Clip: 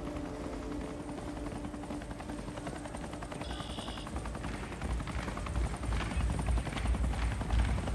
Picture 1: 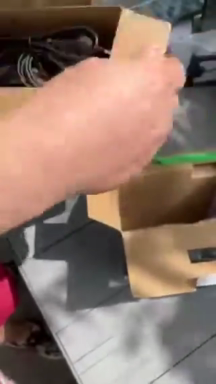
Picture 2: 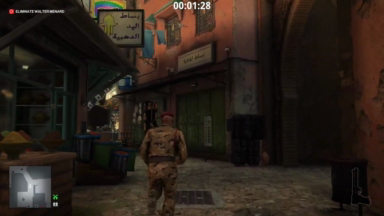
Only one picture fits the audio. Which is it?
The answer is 2